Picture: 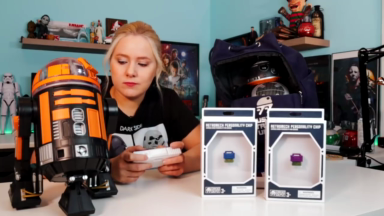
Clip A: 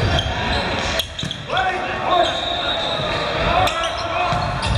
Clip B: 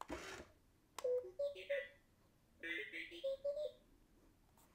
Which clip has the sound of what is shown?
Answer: B